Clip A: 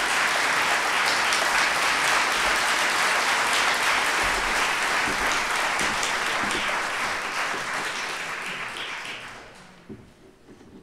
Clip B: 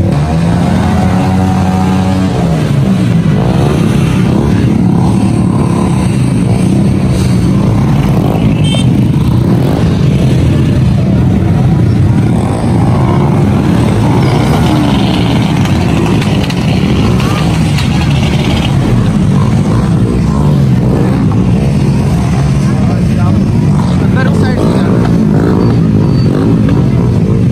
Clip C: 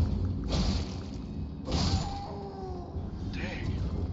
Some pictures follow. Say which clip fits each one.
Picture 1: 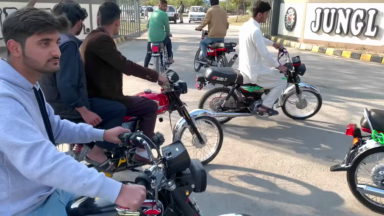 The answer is B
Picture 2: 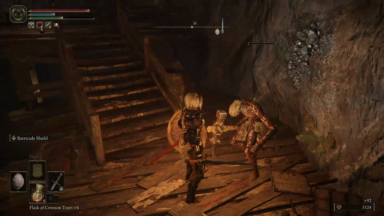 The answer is C